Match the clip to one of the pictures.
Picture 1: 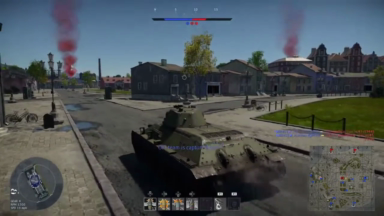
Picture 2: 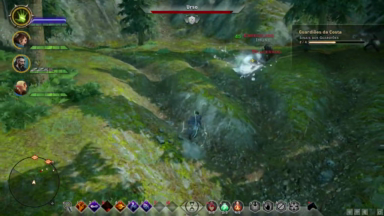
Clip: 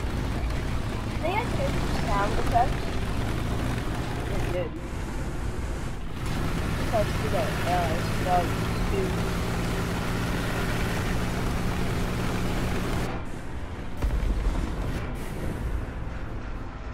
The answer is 1